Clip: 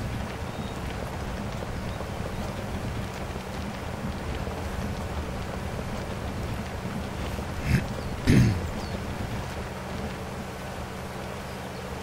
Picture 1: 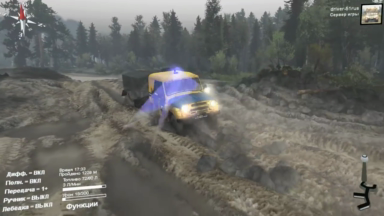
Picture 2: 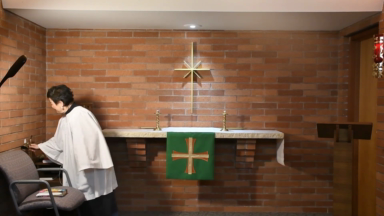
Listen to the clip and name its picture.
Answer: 1